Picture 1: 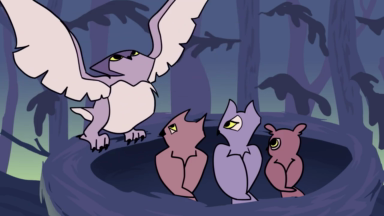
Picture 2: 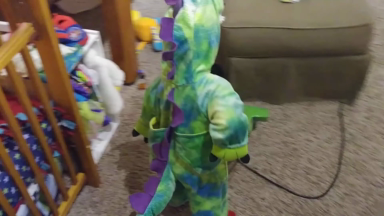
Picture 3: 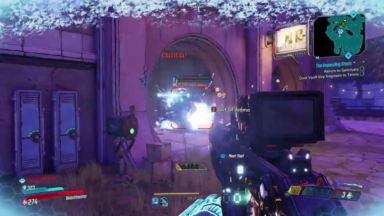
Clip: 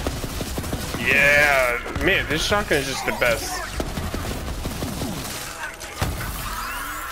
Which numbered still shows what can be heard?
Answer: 3